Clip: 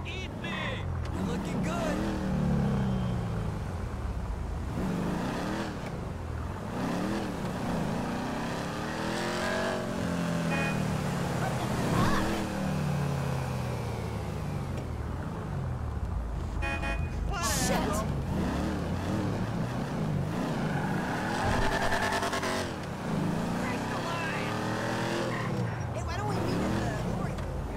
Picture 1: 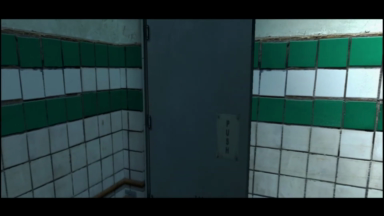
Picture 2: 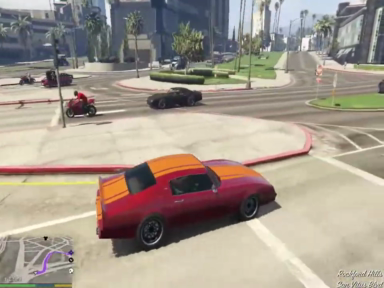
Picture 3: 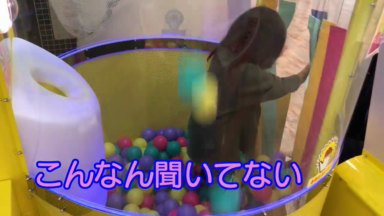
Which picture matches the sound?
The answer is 2